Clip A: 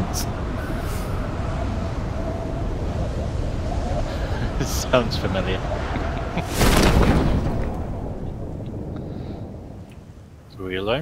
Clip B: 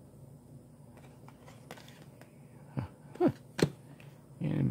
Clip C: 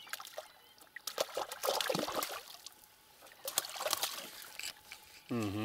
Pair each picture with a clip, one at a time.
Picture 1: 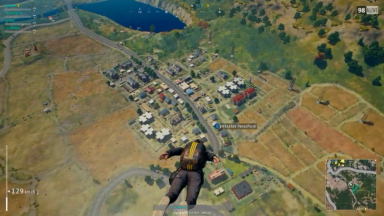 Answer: A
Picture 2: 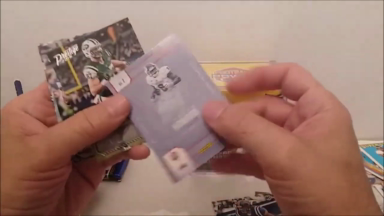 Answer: B